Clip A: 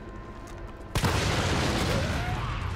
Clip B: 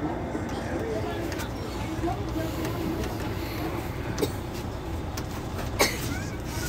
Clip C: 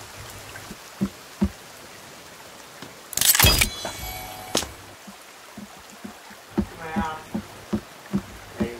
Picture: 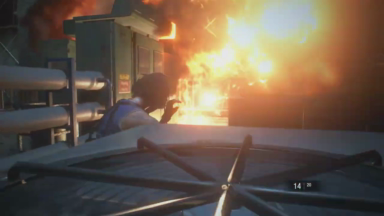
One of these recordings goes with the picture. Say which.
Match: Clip A